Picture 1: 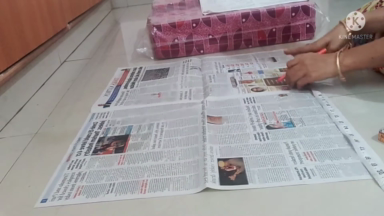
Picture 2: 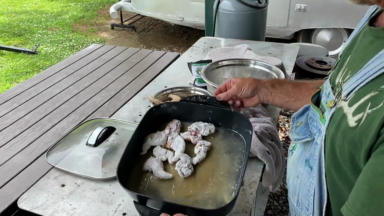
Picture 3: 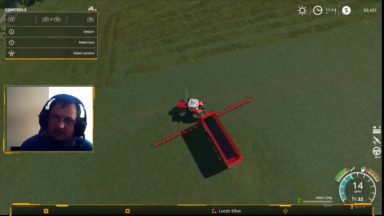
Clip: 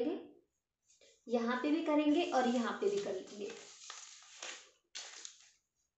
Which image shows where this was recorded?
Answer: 1